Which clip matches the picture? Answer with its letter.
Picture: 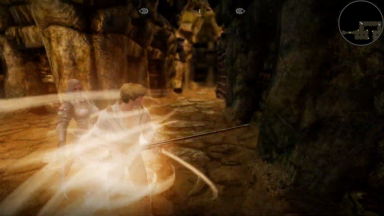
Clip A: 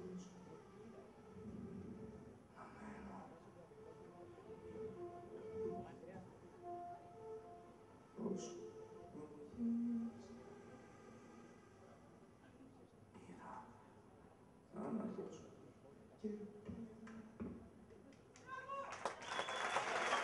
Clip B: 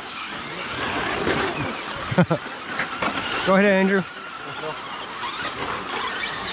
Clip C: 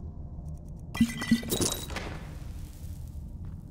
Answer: C